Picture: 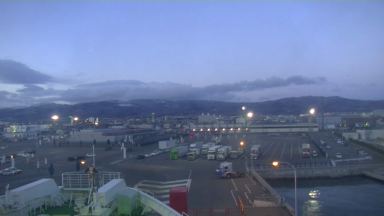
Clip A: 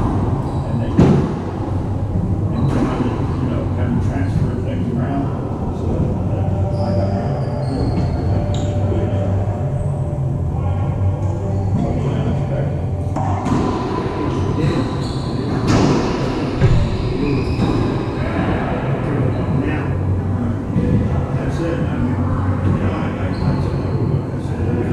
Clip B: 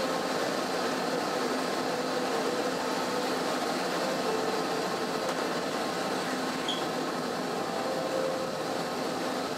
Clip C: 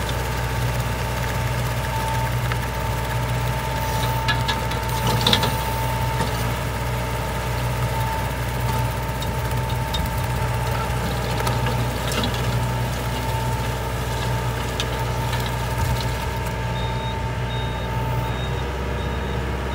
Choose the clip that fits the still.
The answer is B